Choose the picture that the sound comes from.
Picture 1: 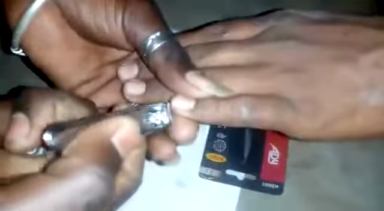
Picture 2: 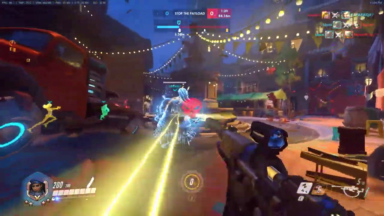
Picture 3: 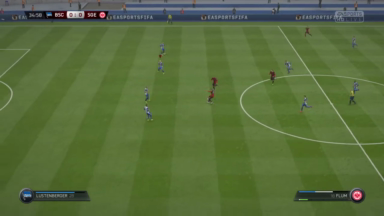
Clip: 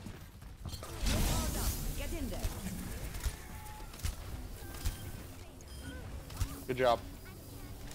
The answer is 2